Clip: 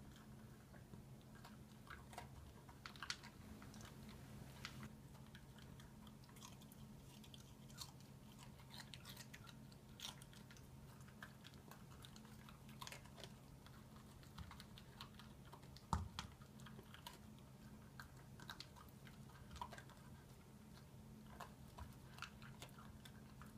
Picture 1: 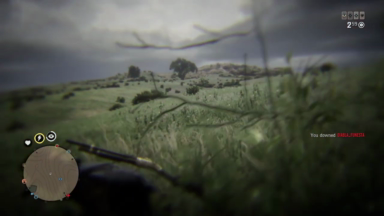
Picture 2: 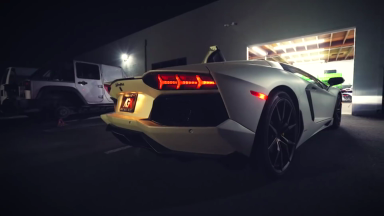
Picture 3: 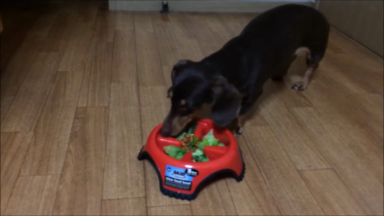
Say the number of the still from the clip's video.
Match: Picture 3